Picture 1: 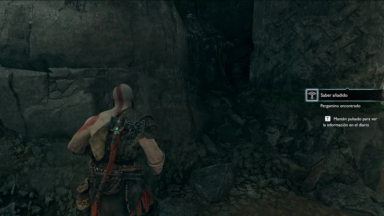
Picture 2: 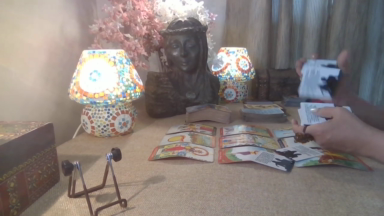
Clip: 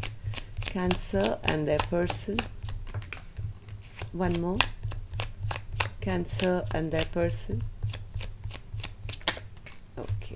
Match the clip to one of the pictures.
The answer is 2